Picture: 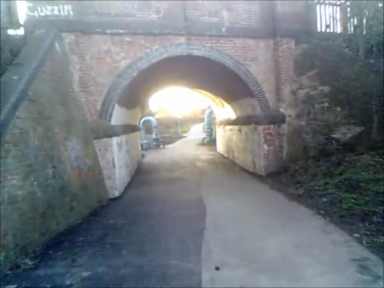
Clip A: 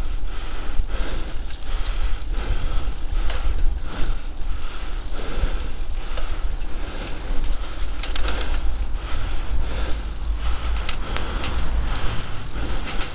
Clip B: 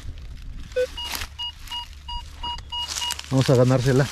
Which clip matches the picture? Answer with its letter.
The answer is A